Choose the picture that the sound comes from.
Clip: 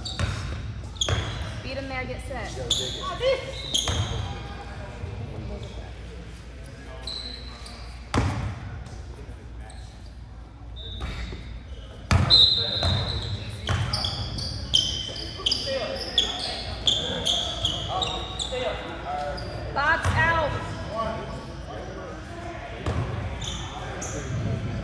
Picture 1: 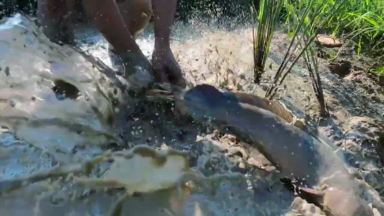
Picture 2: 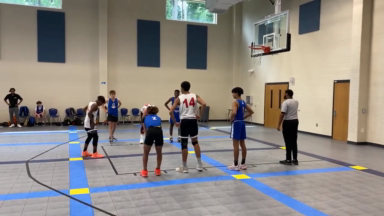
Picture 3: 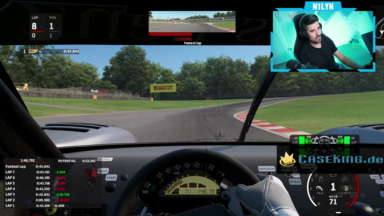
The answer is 2